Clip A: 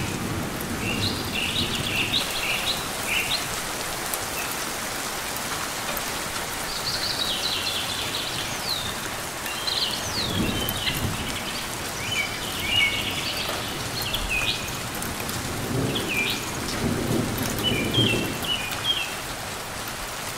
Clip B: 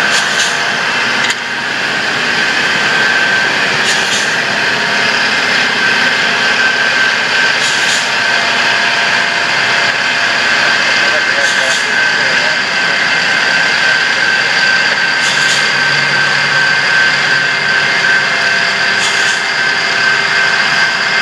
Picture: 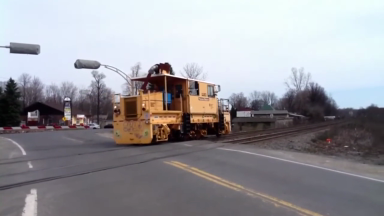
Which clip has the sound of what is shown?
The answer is B